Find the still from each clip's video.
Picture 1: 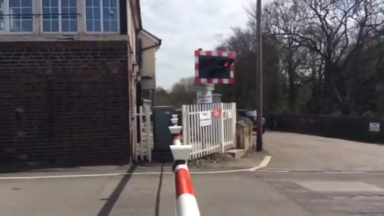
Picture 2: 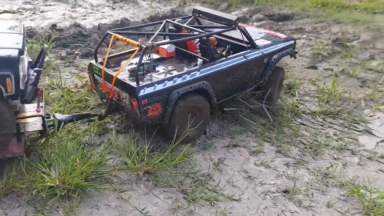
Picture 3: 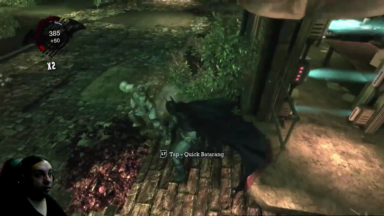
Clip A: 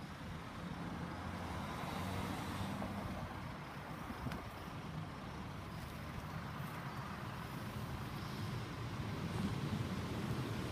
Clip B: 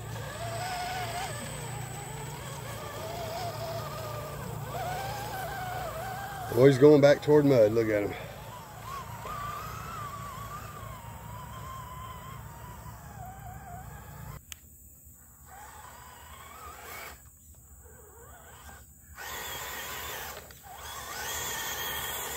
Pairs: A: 1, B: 2